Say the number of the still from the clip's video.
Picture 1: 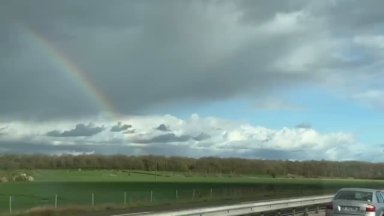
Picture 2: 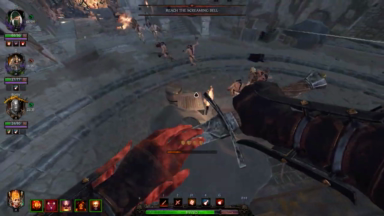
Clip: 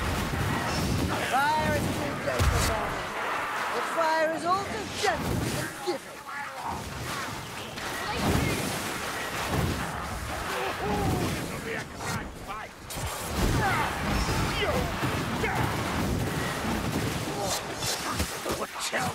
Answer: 2